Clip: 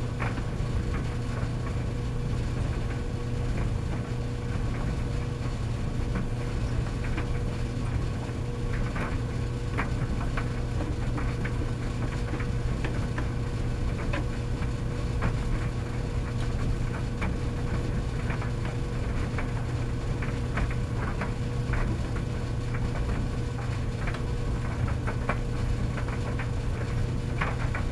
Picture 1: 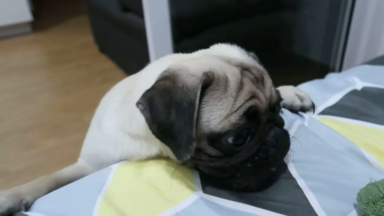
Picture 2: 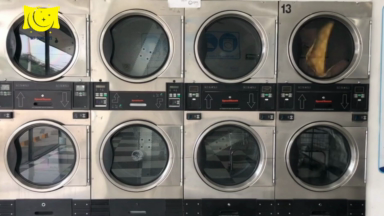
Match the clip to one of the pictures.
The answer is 2